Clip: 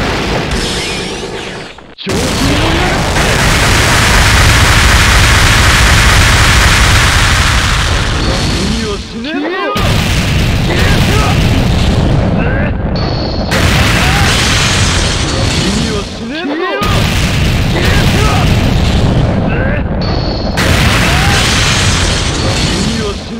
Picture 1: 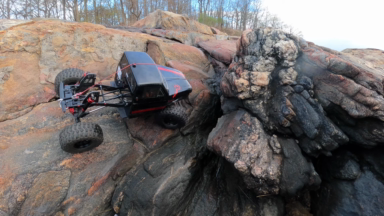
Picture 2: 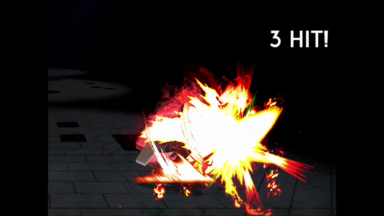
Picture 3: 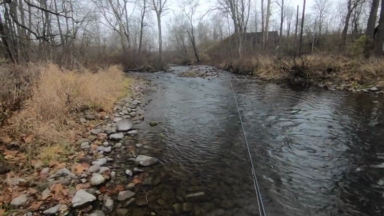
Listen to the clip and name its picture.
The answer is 2